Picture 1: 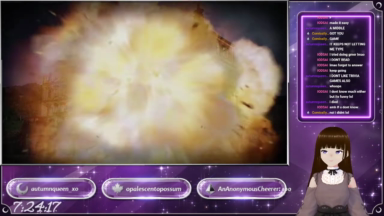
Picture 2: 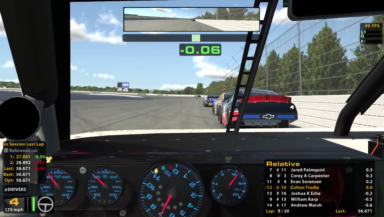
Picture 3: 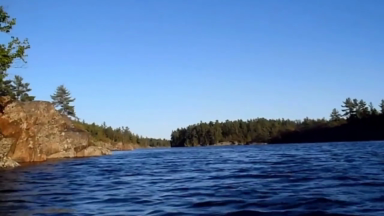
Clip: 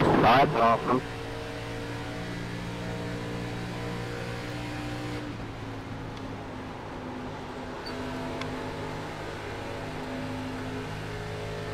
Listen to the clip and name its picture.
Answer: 2